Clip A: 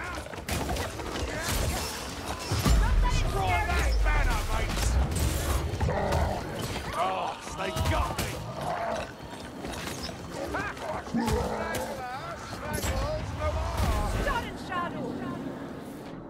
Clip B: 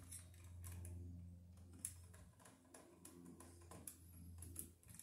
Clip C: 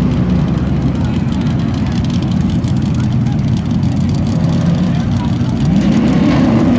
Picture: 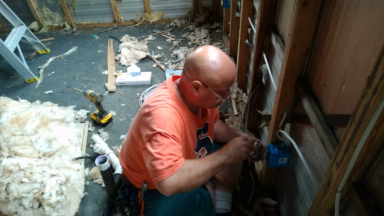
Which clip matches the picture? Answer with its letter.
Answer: B